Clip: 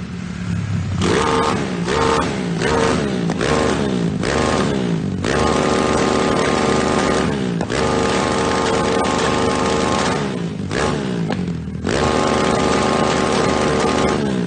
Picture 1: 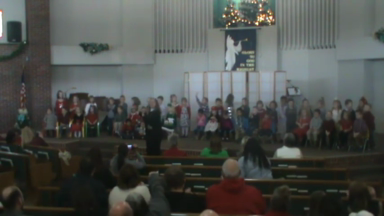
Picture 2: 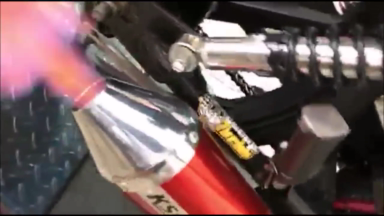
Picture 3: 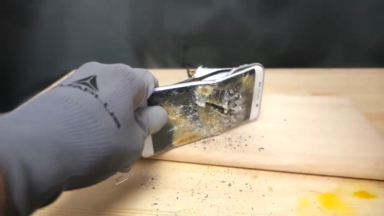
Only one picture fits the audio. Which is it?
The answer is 2